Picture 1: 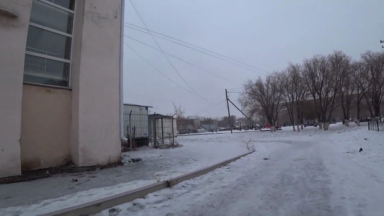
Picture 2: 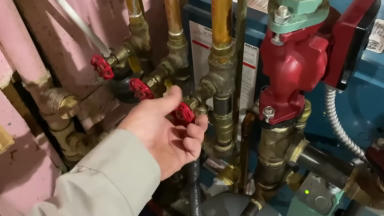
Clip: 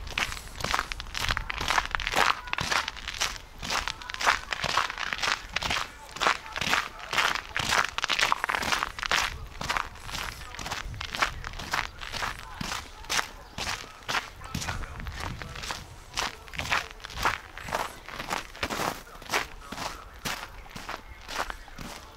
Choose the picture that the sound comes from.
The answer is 1